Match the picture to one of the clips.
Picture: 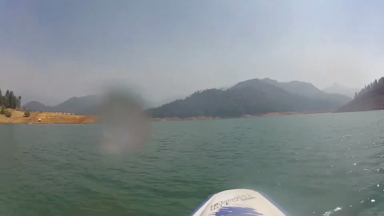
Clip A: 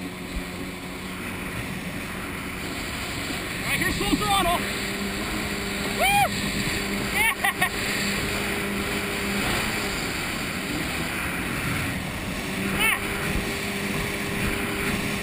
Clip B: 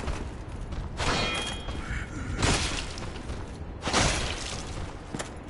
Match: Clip A